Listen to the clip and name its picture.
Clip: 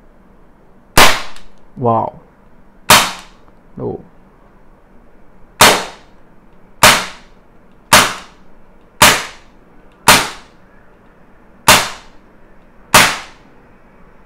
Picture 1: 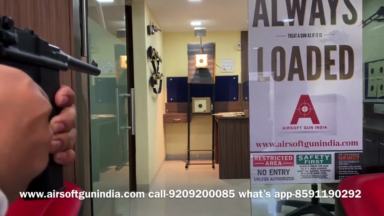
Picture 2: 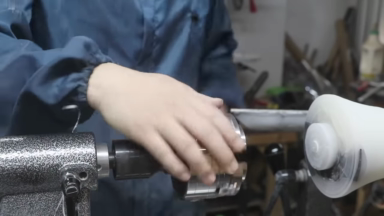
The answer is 1